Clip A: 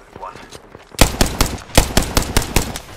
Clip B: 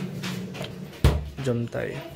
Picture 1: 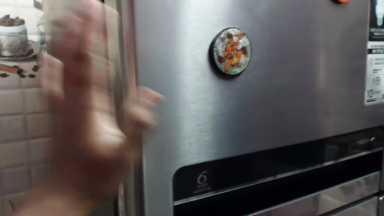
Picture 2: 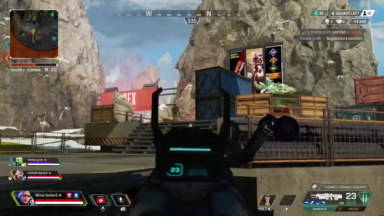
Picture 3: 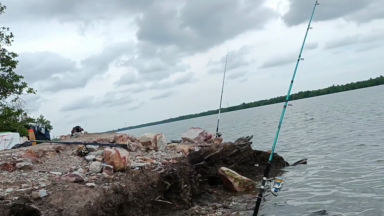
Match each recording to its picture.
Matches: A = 2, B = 1